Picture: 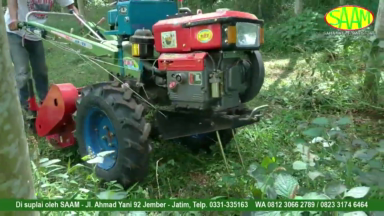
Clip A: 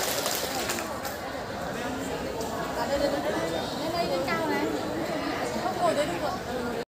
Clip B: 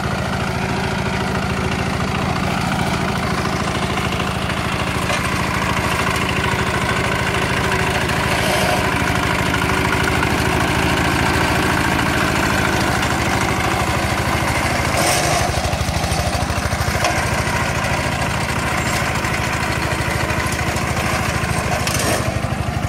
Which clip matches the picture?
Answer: B